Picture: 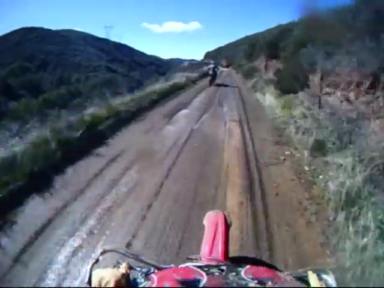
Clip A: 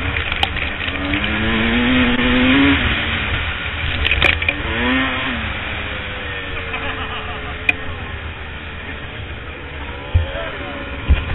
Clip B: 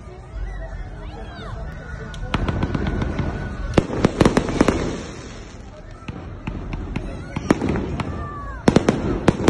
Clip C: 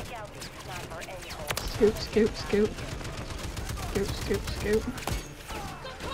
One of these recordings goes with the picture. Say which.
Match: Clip A